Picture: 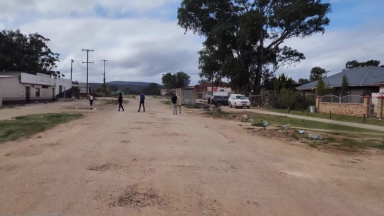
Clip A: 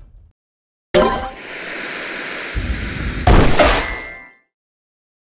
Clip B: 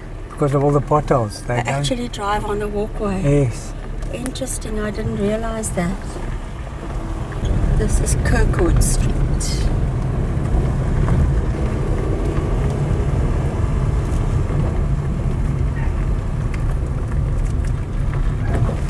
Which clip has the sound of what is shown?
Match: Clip B